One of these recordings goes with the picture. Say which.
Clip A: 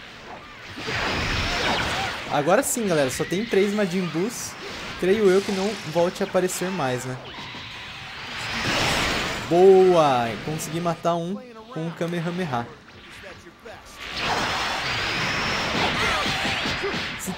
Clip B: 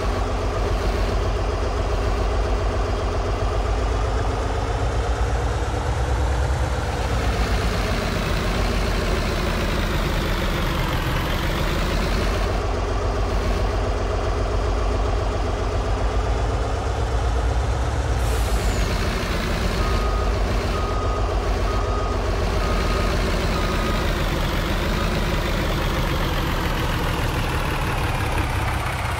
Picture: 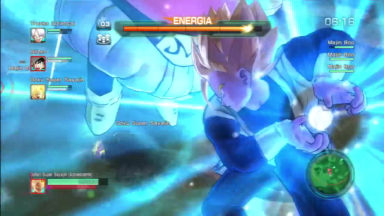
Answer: A